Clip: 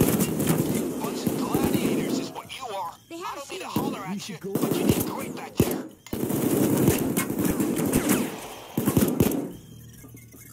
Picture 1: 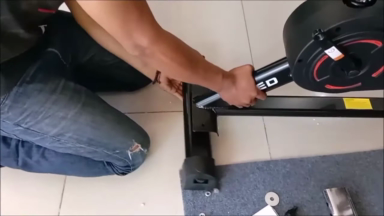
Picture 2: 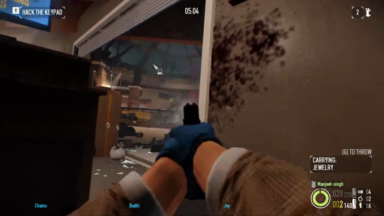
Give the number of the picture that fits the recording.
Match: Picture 2